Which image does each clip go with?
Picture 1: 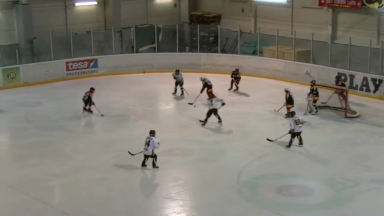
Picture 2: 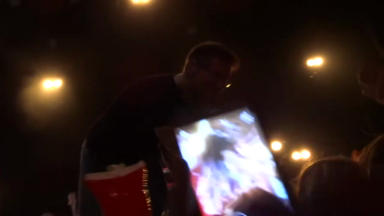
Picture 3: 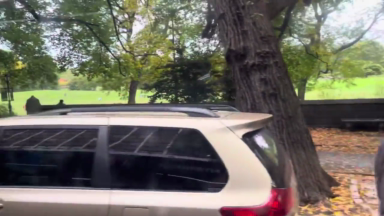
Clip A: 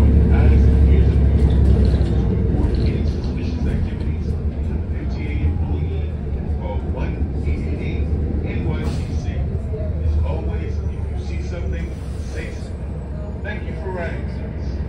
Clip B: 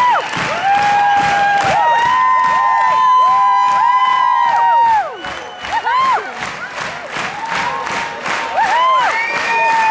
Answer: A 3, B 2